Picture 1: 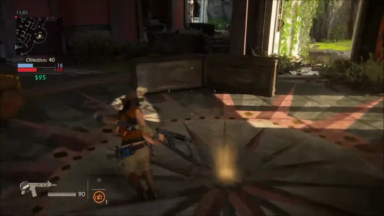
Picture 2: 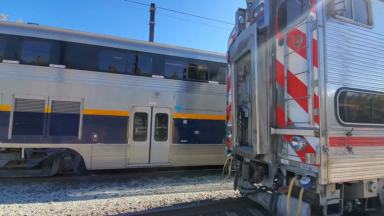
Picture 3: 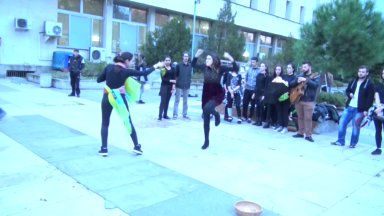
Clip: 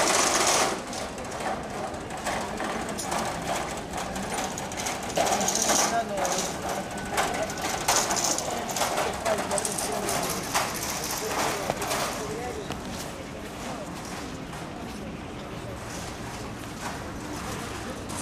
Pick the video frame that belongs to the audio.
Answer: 3